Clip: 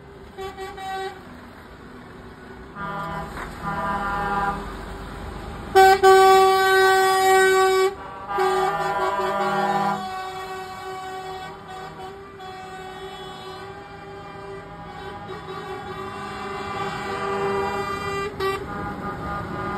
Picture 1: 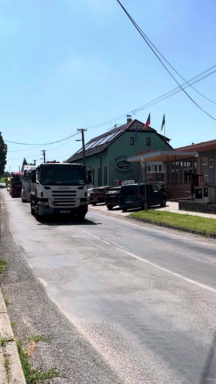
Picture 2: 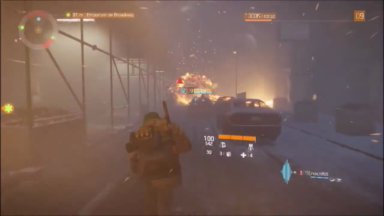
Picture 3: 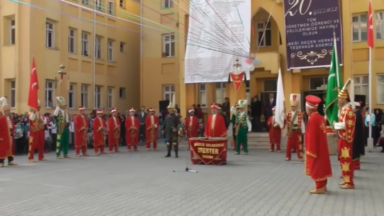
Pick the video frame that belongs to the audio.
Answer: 1